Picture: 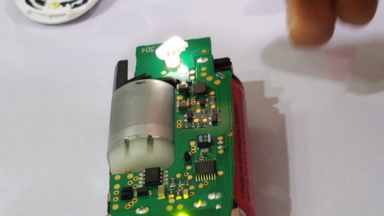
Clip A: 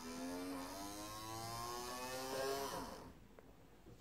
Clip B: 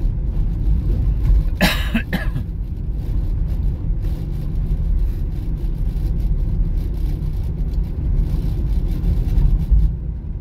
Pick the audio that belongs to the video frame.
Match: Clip A